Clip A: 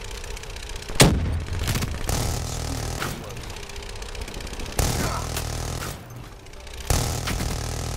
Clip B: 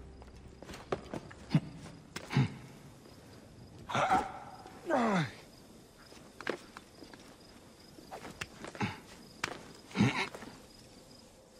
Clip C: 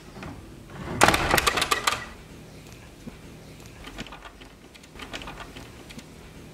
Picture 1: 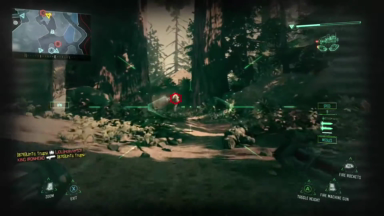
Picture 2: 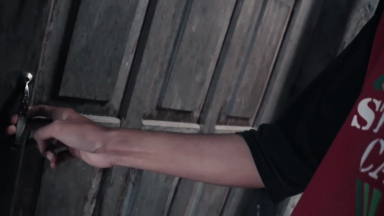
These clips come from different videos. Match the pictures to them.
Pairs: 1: A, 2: C